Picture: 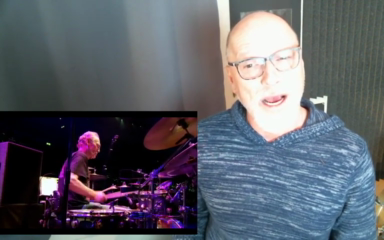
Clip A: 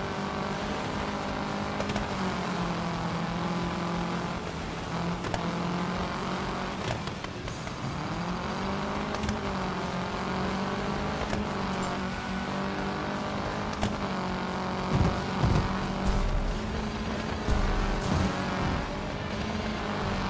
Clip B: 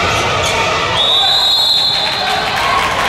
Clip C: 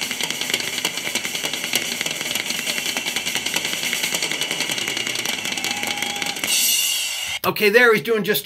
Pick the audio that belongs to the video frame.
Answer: C